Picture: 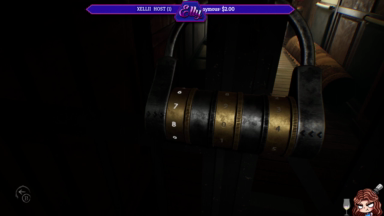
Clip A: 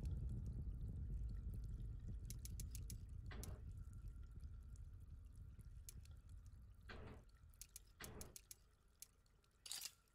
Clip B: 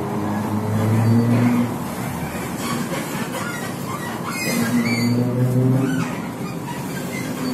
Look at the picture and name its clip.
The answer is A